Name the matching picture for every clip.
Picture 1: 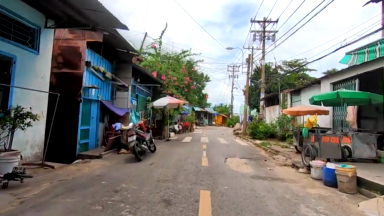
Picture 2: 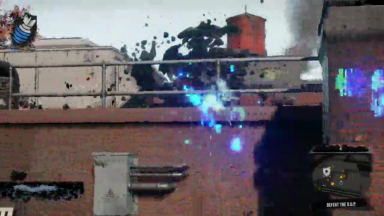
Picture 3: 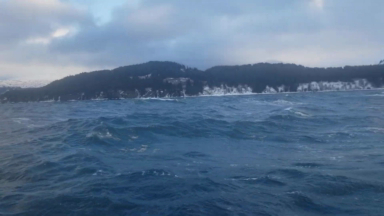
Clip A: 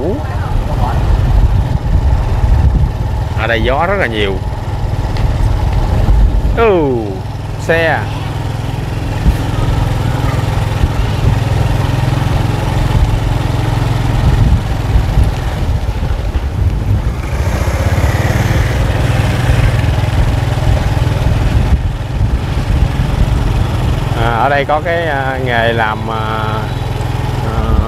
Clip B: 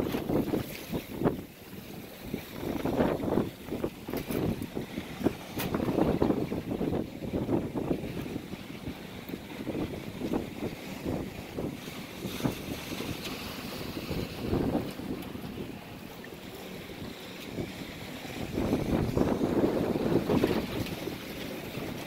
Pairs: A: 1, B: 3